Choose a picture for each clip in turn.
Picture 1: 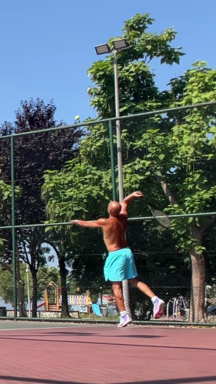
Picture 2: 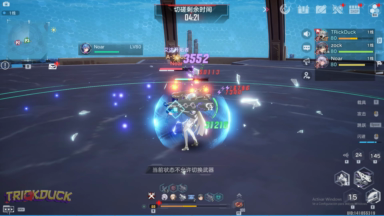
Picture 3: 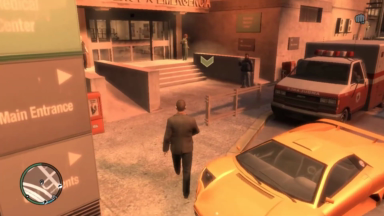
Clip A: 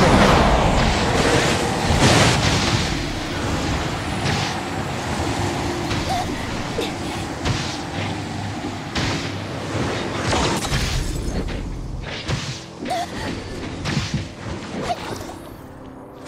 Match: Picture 2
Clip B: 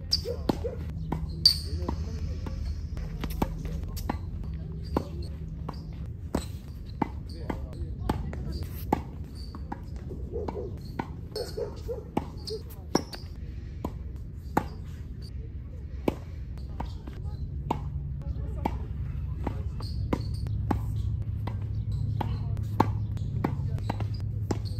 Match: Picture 1